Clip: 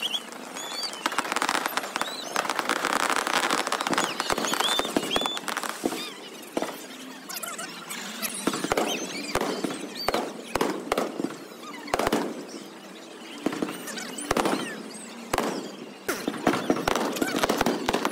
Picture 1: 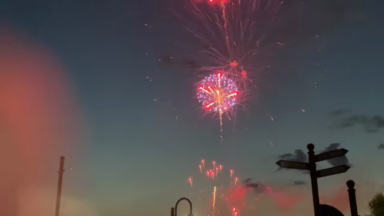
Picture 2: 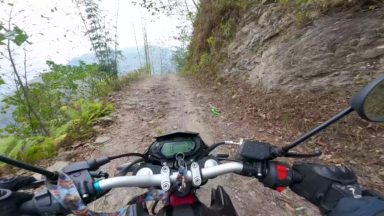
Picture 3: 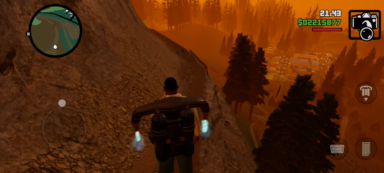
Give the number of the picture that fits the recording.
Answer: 1